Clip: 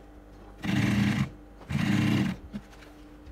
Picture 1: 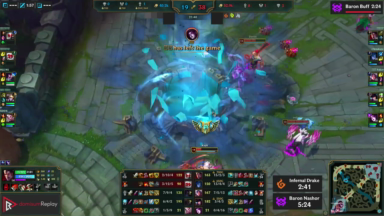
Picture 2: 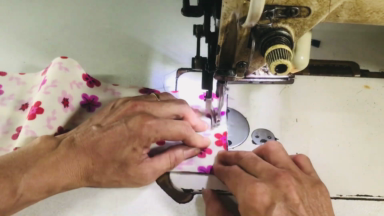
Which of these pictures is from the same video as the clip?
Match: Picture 2